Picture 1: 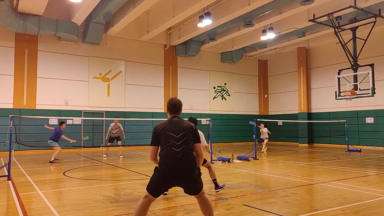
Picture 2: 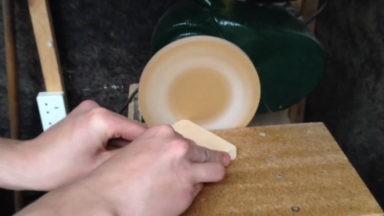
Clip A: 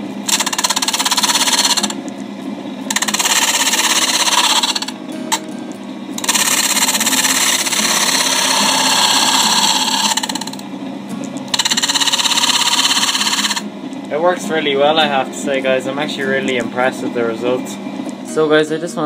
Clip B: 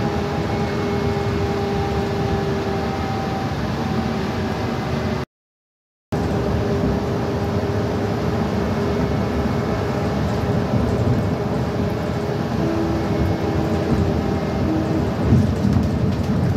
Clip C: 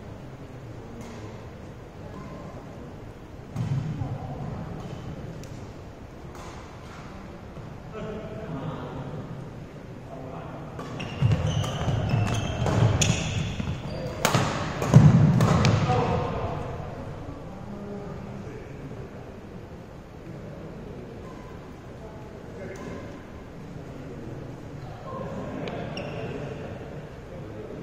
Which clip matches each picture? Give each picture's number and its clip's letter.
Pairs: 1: C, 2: A